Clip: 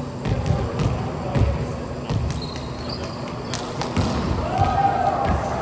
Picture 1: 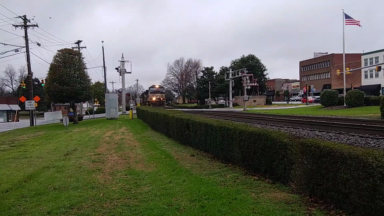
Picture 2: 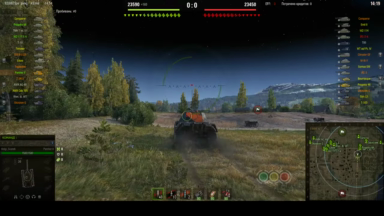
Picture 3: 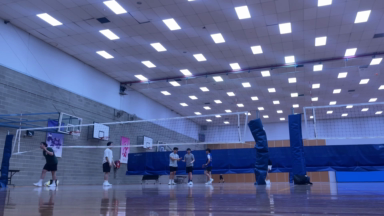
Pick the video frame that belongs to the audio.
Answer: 3